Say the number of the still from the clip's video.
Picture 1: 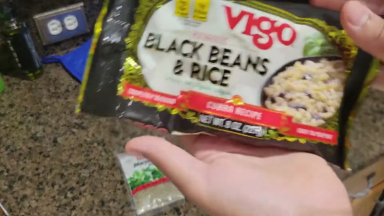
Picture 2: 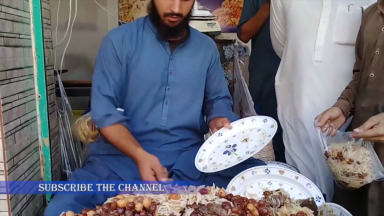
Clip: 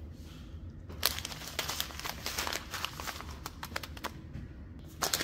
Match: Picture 1